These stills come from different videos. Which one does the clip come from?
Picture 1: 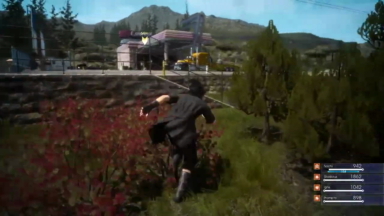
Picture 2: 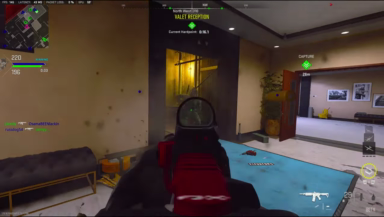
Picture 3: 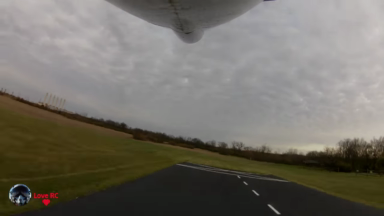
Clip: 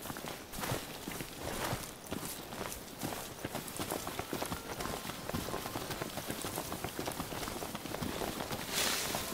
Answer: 1